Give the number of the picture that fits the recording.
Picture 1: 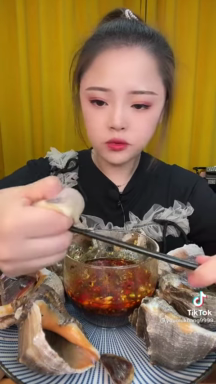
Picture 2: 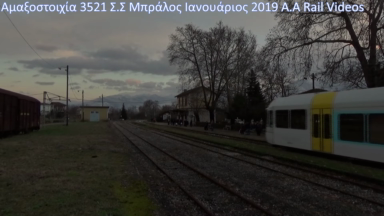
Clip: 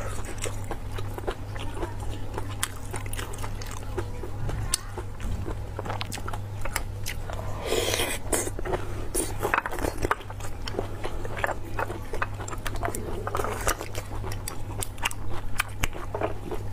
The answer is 1